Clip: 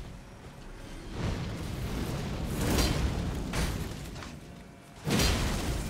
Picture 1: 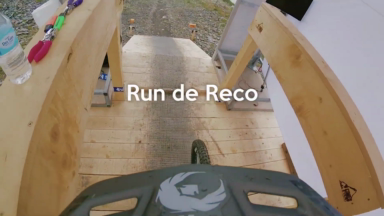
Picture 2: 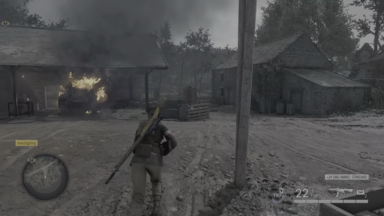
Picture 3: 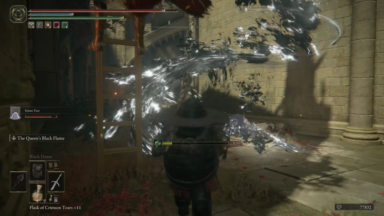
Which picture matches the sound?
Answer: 3